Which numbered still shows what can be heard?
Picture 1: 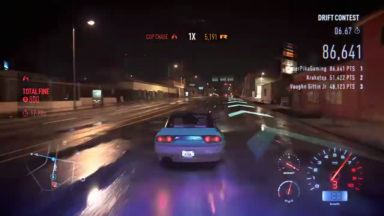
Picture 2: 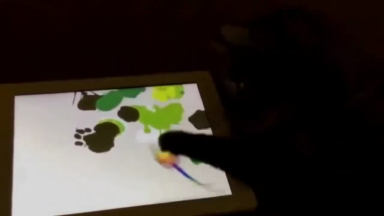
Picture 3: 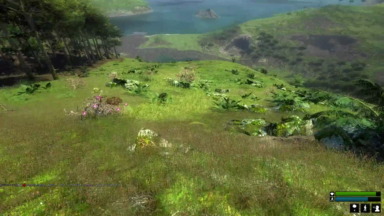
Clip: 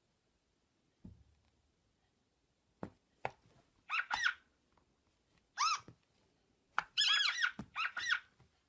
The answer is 2